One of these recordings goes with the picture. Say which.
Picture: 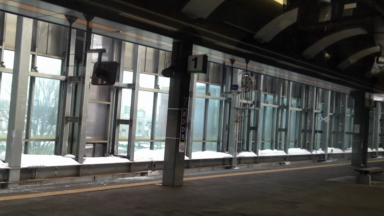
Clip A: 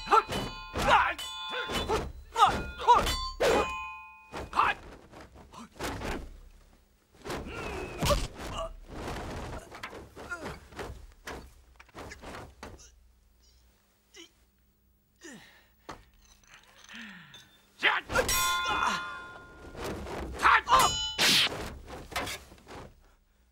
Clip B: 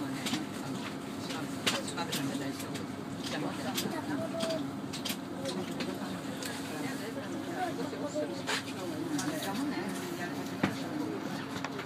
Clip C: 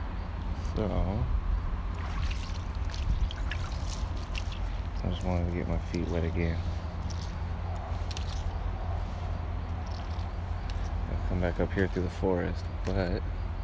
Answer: B